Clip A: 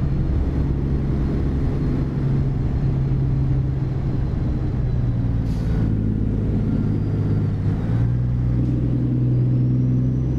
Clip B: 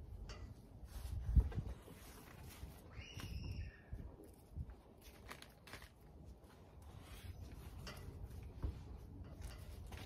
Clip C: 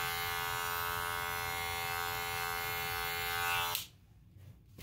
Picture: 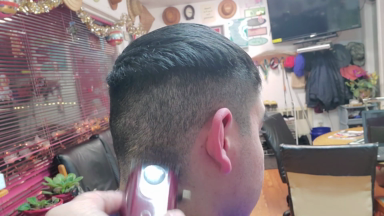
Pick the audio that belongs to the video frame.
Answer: C